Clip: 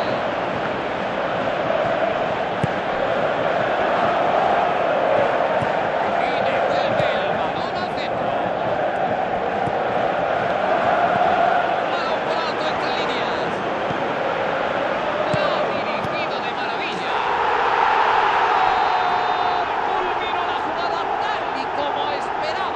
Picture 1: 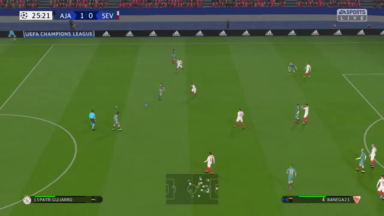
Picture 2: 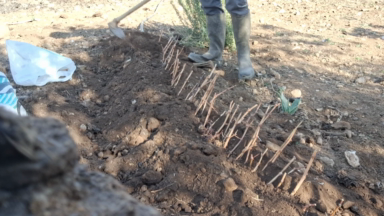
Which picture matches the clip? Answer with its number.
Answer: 1